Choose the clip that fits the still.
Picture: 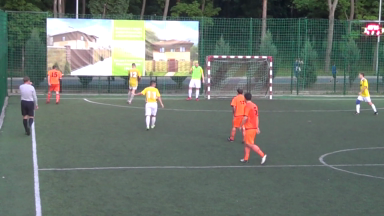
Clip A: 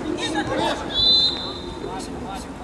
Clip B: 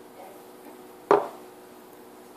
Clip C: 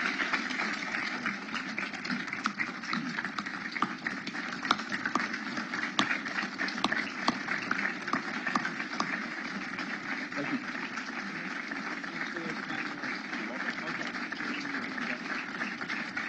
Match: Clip A